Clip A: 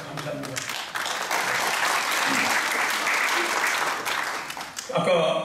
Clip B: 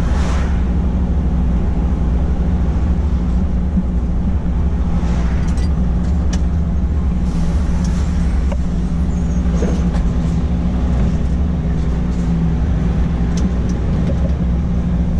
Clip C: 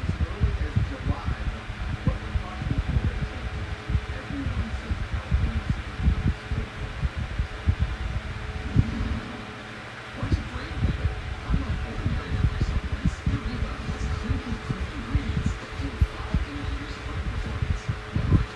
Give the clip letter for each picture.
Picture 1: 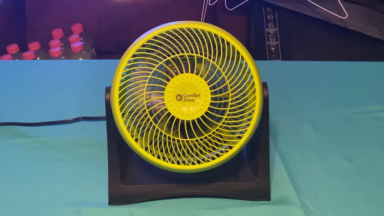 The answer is C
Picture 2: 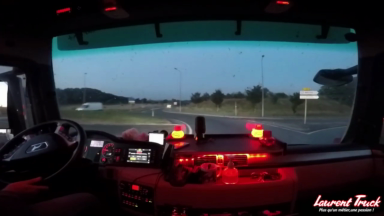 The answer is B